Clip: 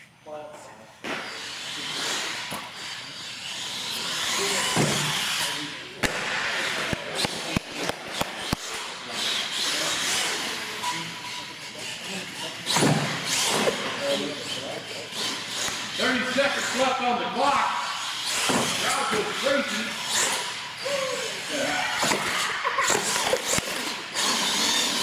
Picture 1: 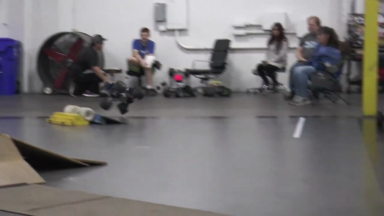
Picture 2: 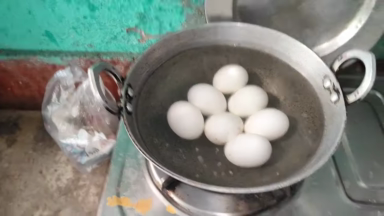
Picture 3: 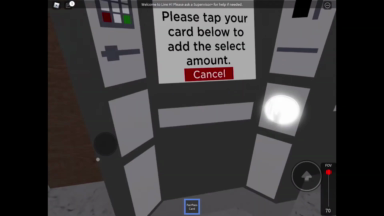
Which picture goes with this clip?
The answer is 1